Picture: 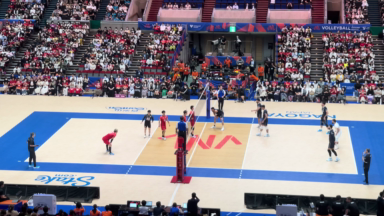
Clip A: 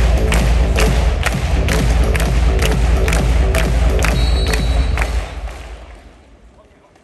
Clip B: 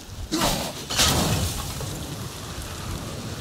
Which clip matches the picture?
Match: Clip A